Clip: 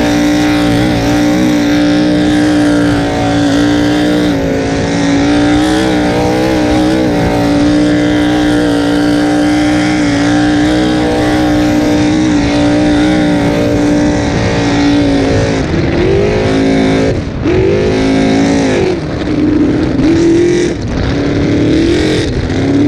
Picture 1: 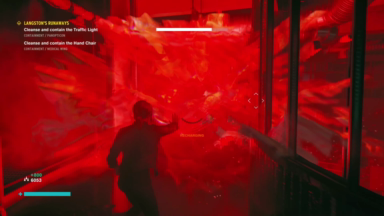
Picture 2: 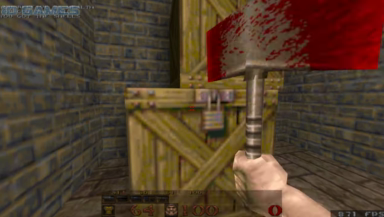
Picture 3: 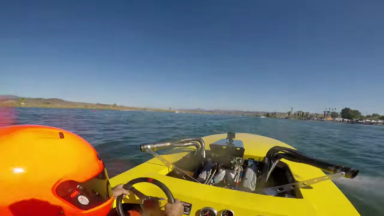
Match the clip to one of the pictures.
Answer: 3